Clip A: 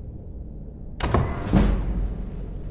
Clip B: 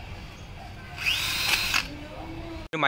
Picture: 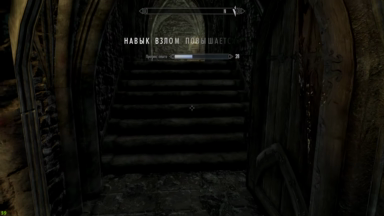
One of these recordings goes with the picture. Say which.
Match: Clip A